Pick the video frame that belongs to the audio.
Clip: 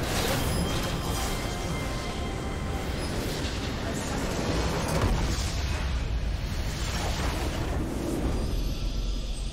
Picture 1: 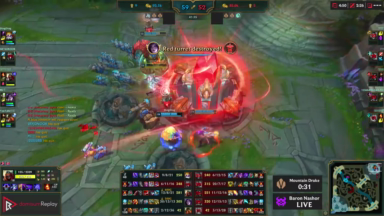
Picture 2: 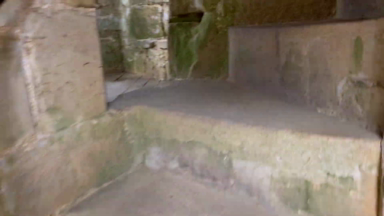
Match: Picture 1